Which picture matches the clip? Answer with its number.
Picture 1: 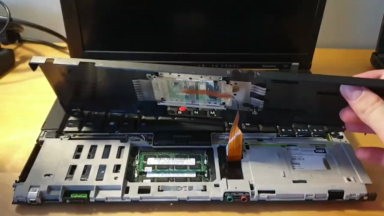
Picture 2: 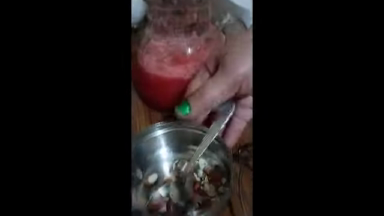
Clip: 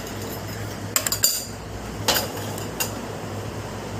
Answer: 2